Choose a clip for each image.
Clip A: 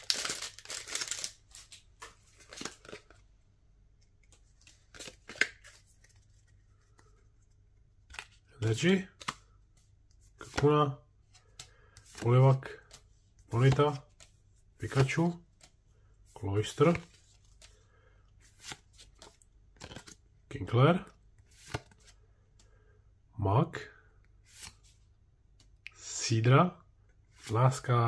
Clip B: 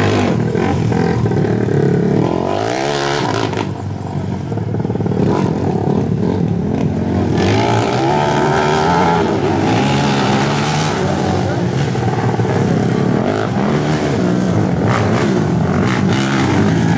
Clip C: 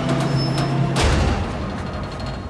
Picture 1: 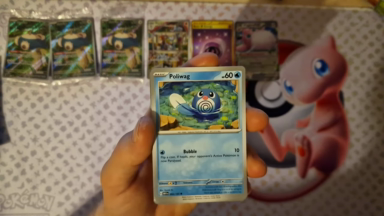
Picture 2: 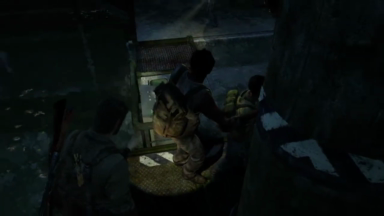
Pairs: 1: A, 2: C